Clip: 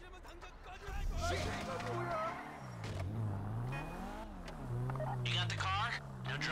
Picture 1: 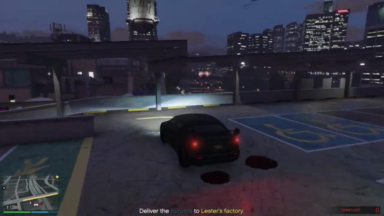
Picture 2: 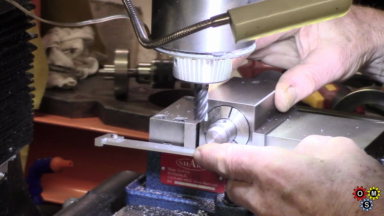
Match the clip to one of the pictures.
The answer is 1